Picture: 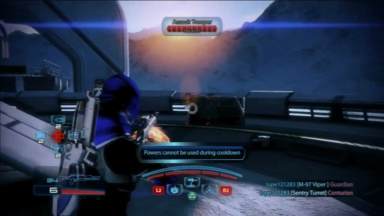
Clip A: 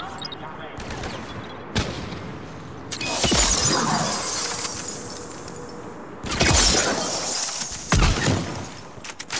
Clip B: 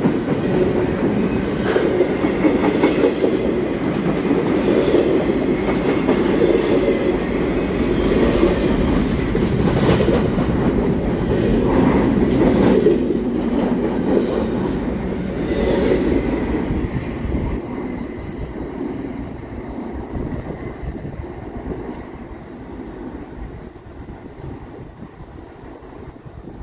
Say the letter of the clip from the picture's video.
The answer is A